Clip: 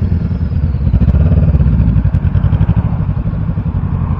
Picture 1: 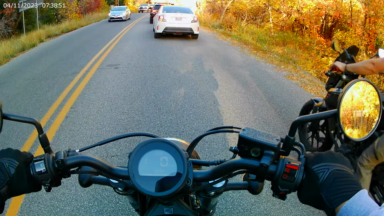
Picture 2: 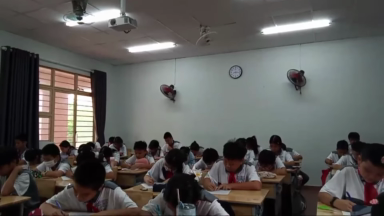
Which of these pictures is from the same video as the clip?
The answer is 1